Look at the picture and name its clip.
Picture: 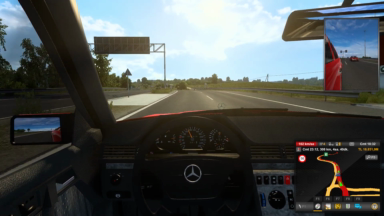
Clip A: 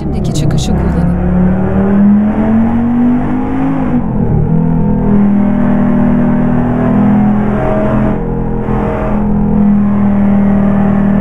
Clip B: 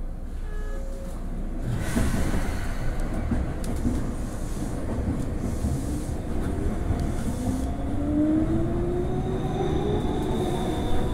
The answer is A